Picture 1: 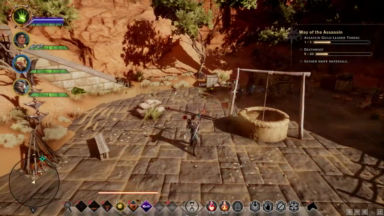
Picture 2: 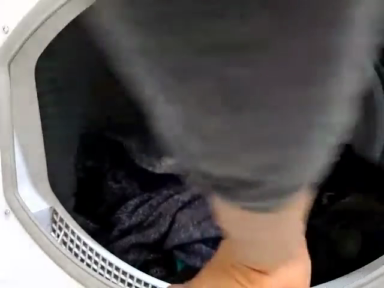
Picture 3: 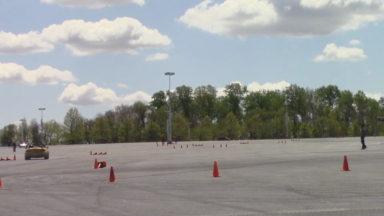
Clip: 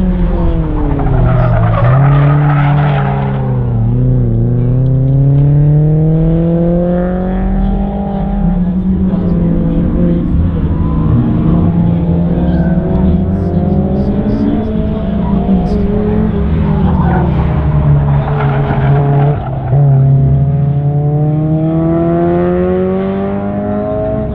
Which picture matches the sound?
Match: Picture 3